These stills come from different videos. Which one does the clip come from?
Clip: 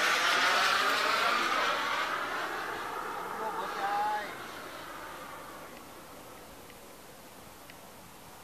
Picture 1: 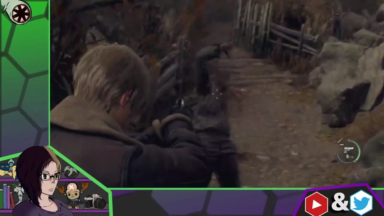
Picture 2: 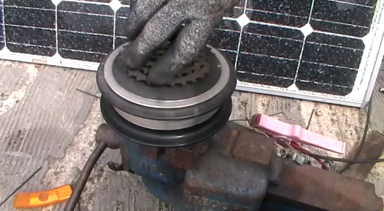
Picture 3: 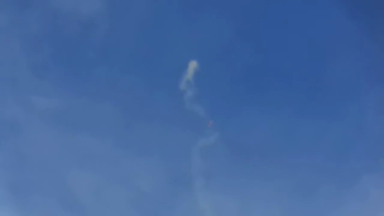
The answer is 3